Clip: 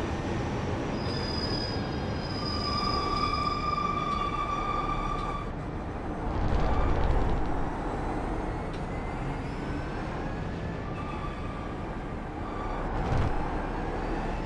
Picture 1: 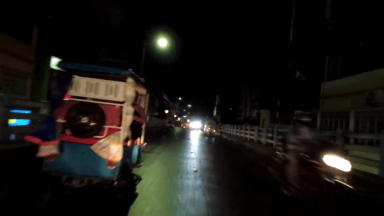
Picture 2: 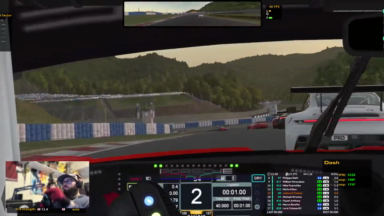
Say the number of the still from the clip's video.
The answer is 2